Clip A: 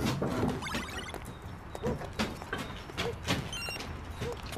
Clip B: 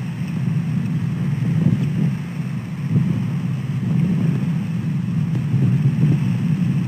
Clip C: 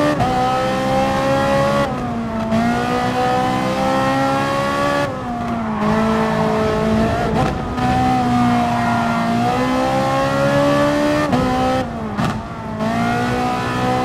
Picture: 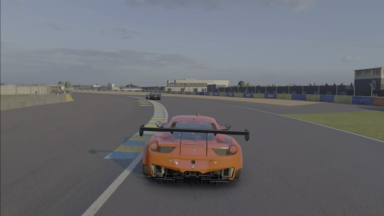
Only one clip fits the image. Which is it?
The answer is C